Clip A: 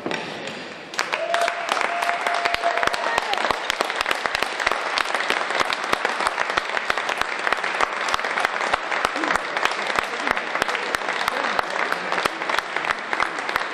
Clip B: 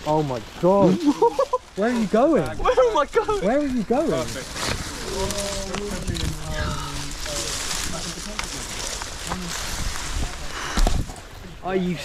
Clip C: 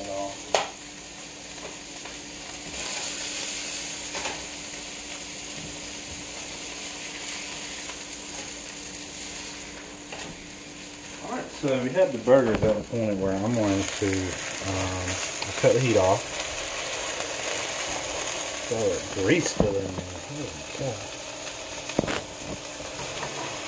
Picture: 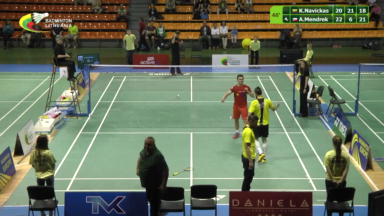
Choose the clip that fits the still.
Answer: A